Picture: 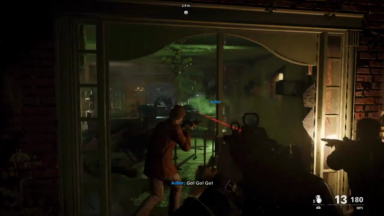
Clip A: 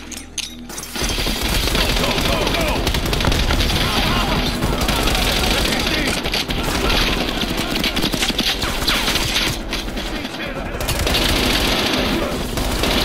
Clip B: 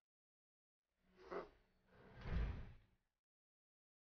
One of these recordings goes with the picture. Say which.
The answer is A